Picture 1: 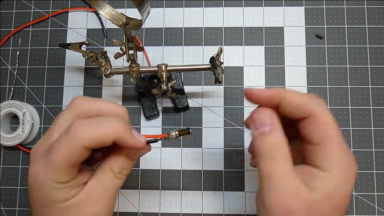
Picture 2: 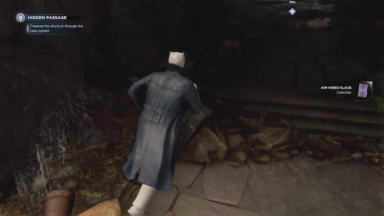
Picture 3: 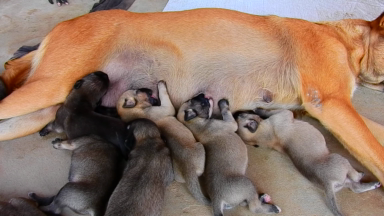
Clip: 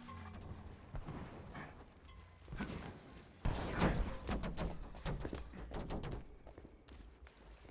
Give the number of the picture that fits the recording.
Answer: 2